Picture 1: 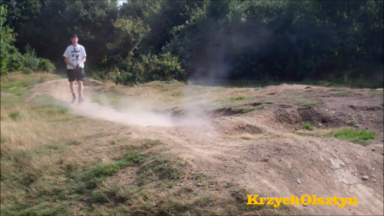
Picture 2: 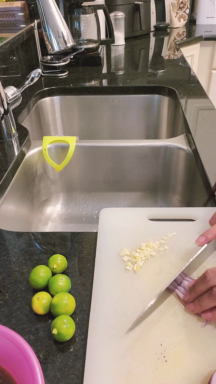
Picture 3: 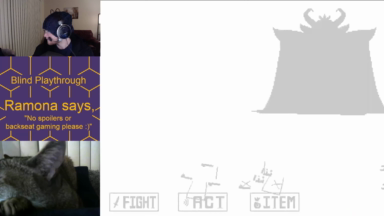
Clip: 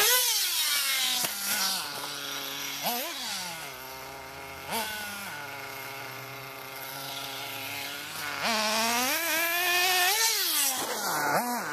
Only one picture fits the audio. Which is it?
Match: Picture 1